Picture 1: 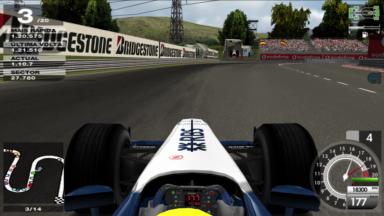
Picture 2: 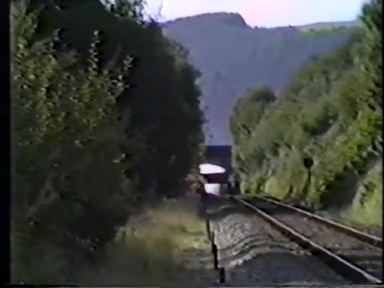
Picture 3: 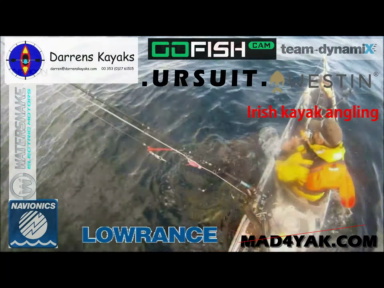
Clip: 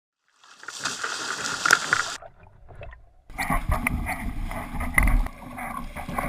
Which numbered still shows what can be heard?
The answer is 3